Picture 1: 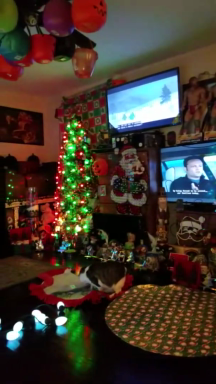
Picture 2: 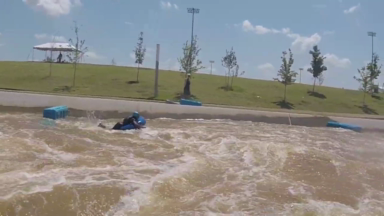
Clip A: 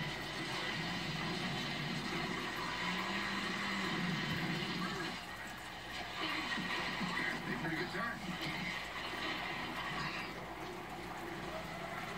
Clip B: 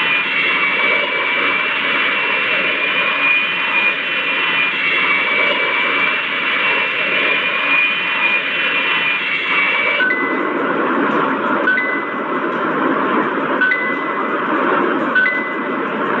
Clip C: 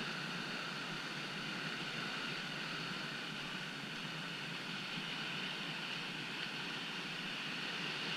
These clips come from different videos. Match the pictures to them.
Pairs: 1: A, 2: C